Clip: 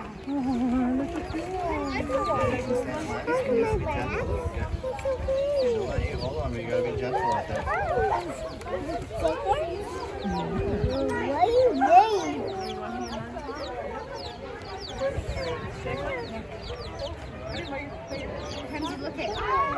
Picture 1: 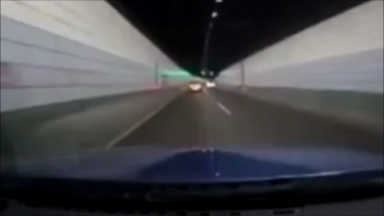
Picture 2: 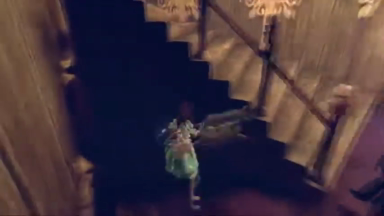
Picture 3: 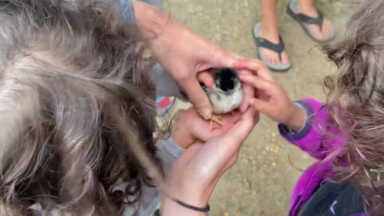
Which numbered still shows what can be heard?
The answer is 3